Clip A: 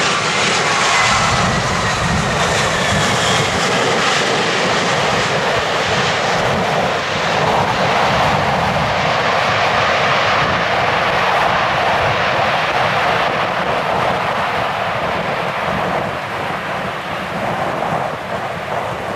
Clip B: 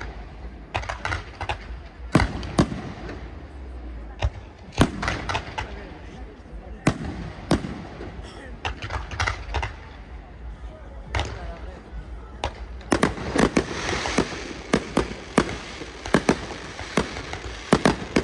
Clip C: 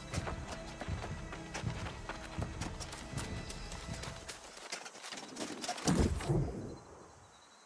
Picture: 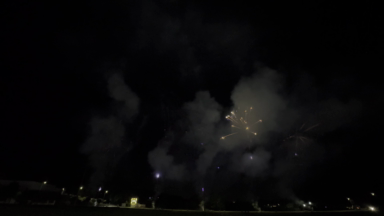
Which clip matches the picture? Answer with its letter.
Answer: B